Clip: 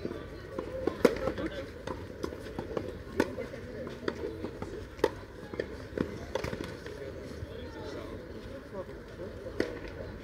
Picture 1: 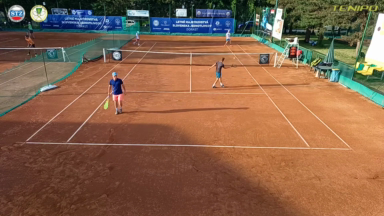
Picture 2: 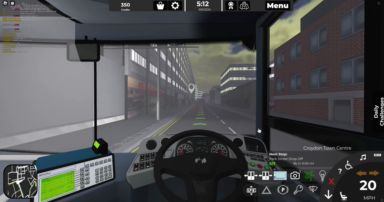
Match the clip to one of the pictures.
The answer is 1